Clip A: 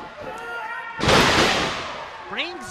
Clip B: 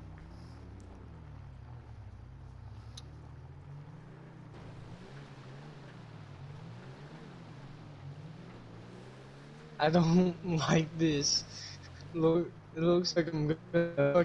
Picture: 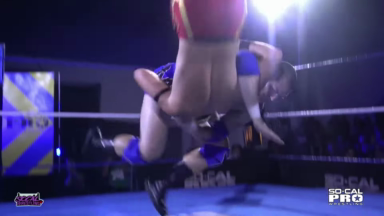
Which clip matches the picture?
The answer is A